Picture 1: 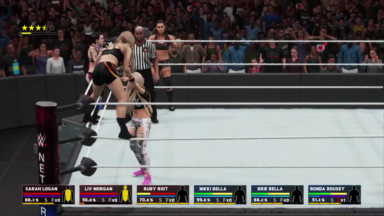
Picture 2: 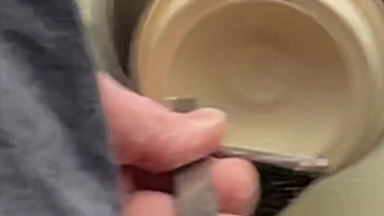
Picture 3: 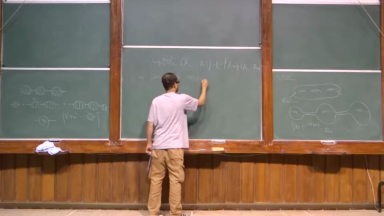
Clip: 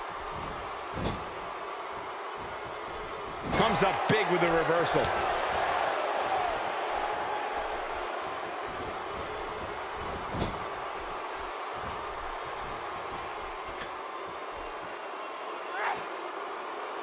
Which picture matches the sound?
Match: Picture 1